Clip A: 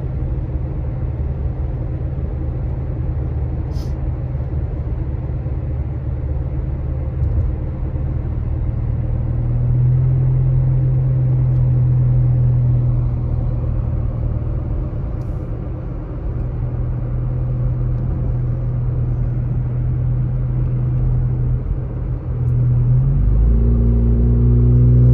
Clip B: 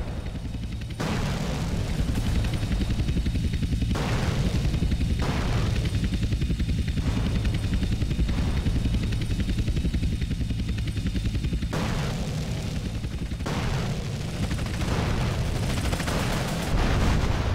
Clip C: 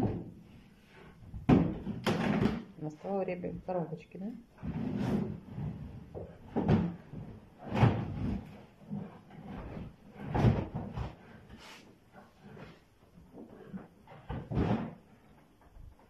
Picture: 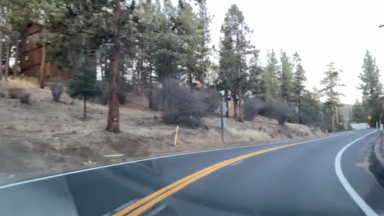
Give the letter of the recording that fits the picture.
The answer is A